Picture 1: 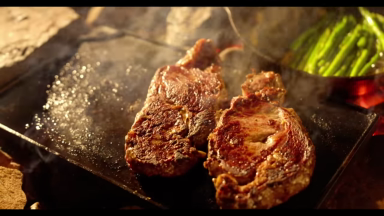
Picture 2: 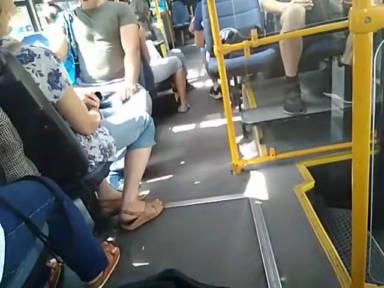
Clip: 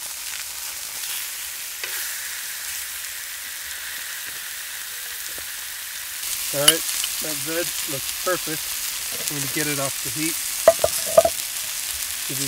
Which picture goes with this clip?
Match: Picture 1